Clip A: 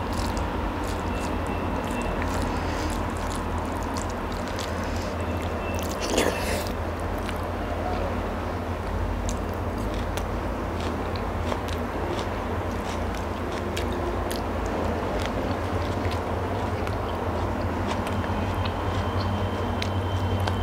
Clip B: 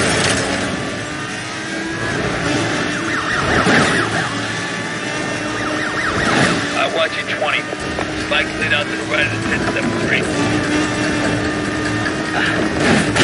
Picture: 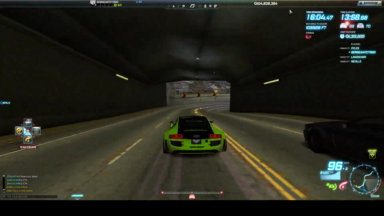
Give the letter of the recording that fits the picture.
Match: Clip B